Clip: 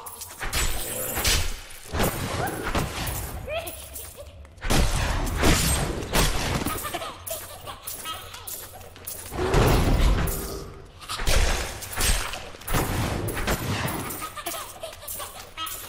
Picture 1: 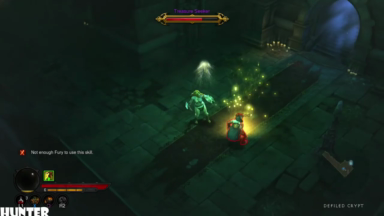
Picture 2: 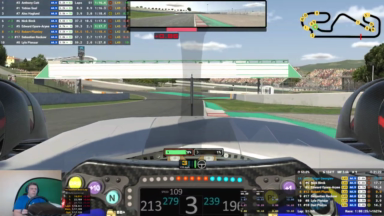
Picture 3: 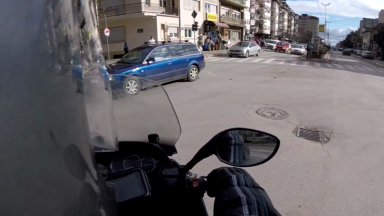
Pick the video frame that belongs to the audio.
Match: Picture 1